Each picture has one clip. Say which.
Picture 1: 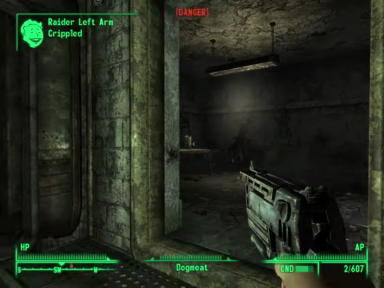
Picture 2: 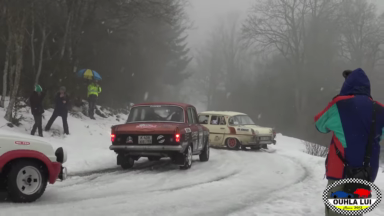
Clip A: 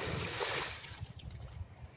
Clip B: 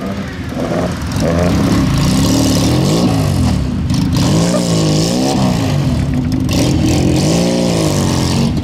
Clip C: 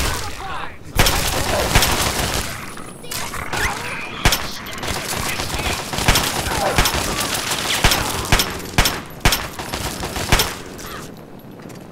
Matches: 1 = C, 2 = B